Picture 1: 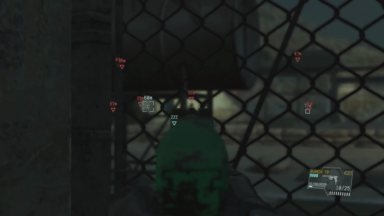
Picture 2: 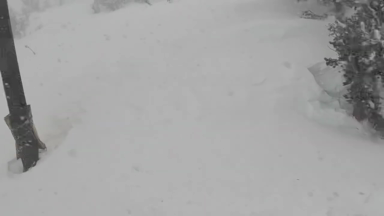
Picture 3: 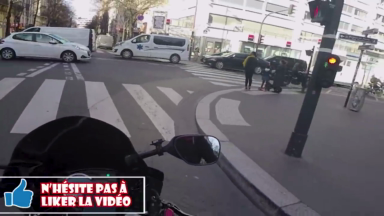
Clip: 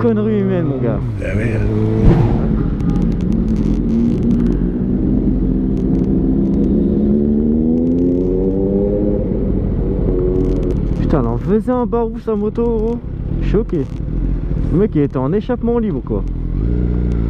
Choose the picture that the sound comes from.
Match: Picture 3